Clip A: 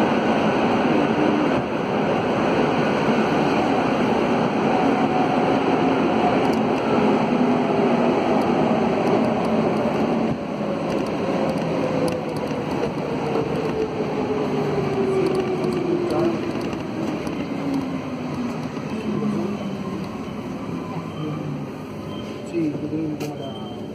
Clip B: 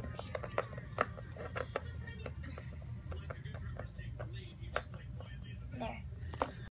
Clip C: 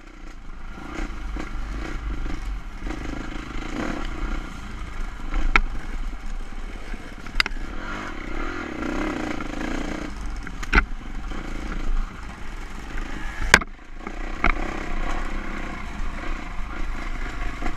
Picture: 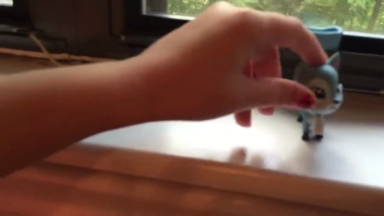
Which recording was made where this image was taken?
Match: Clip B